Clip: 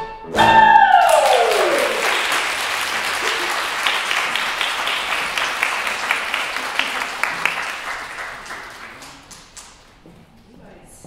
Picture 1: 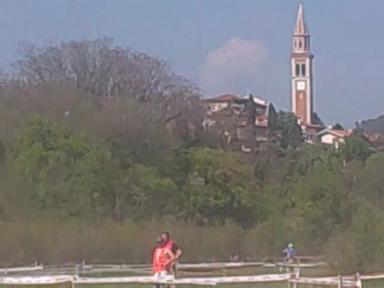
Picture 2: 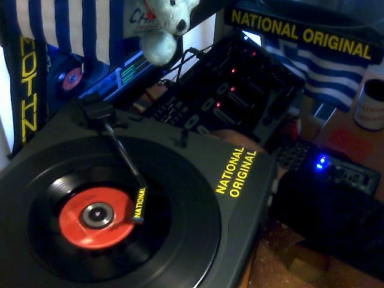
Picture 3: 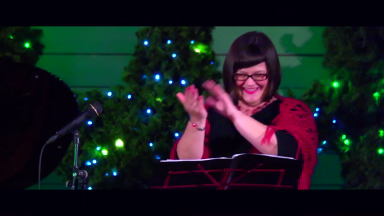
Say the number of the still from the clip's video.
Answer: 3